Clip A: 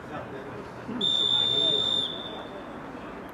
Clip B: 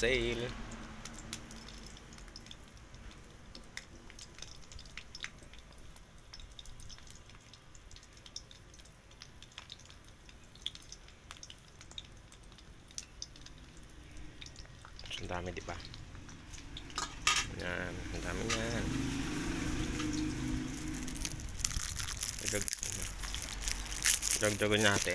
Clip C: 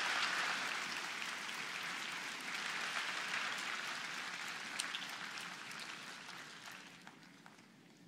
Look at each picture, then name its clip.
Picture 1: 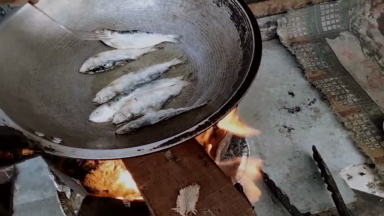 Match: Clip B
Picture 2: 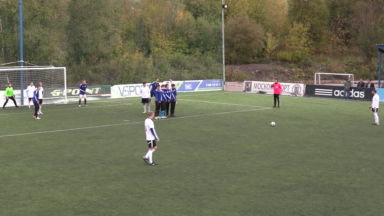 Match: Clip A